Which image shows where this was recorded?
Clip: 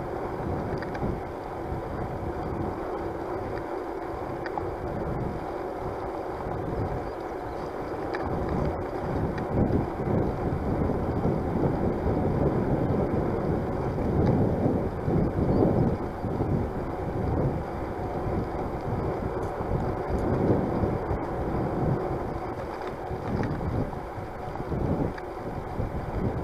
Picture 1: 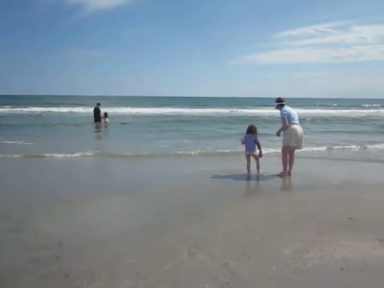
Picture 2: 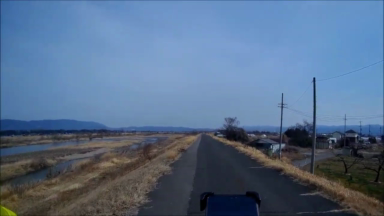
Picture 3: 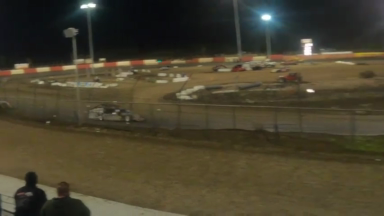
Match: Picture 2